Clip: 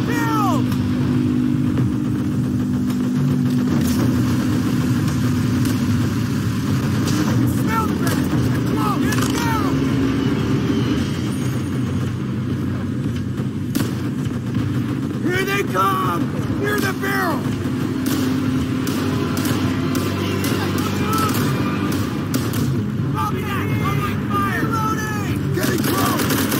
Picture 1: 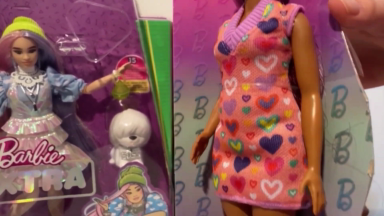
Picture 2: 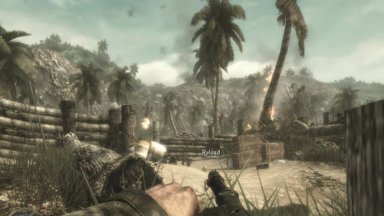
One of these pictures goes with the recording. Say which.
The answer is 2